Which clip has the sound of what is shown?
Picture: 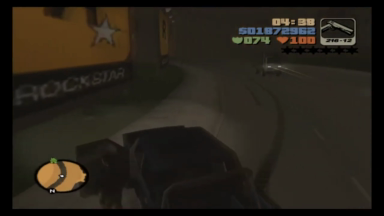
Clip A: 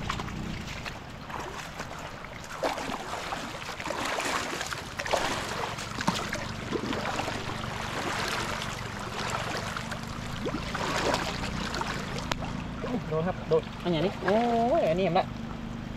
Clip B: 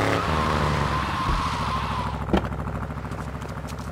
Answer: B